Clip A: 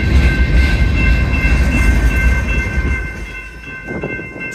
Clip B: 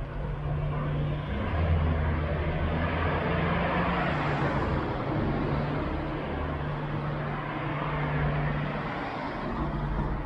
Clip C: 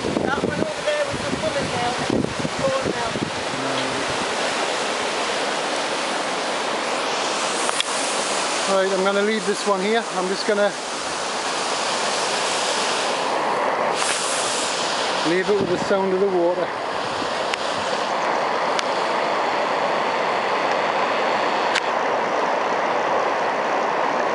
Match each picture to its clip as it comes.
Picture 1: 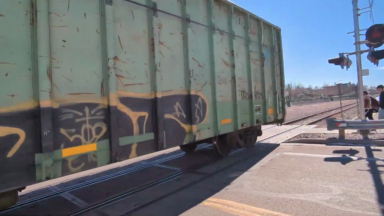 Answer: A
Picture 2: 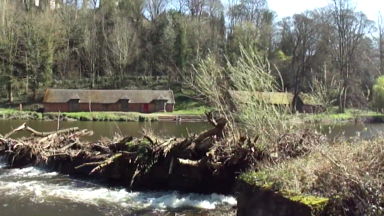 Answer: C